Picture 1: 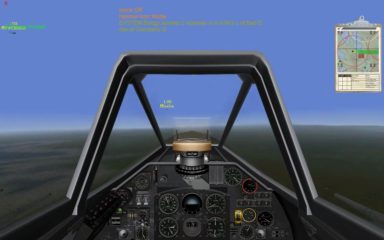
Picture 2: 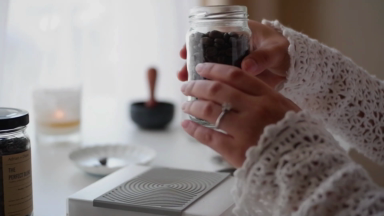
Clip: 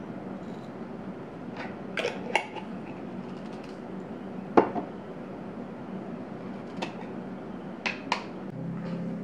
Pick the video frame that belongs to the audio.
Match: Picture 2